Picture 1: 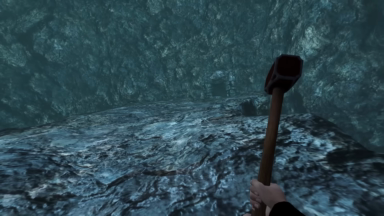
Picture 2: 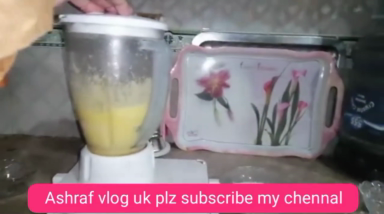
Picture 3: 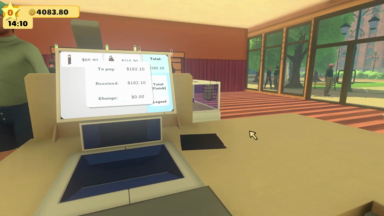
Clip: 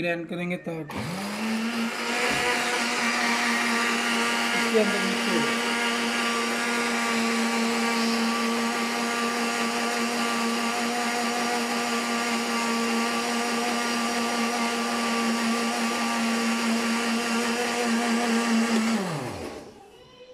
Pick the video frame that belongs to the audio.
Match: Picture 2